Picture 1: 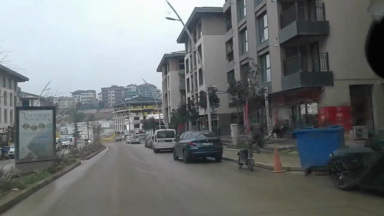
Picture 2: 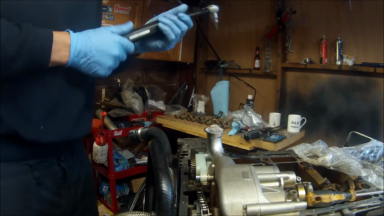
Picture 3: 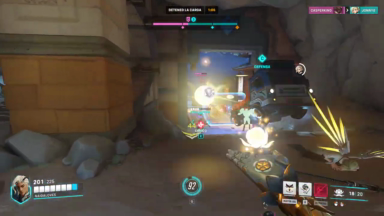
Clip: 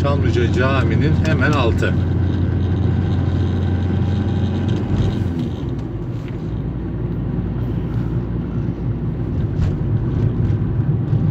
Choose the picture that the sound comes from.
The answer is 1